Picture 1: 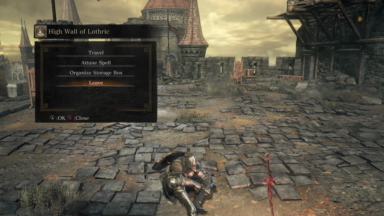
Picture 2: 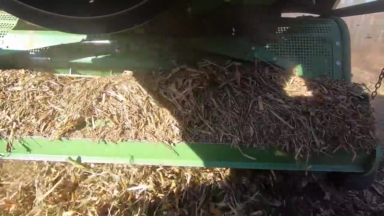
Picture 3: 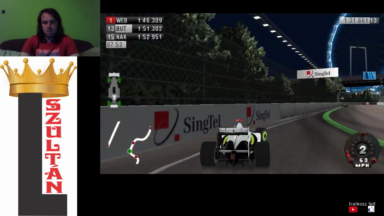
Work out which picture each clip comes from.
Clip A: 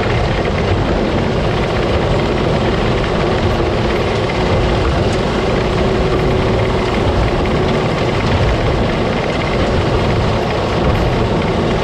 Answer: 2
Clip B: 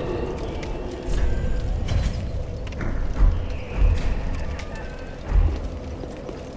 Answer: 1